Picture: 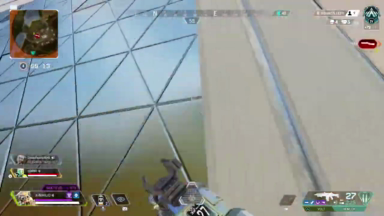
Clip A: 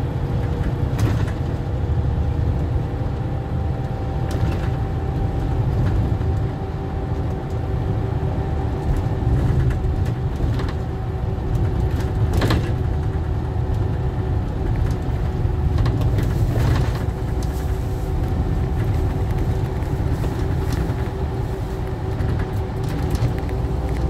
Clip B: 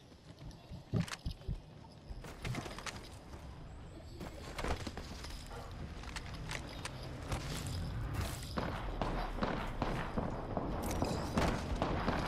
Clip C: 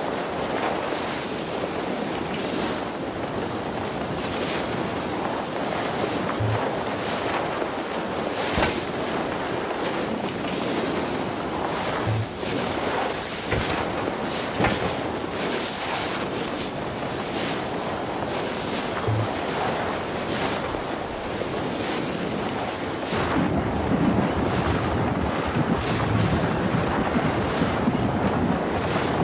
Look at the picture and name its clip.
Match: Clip B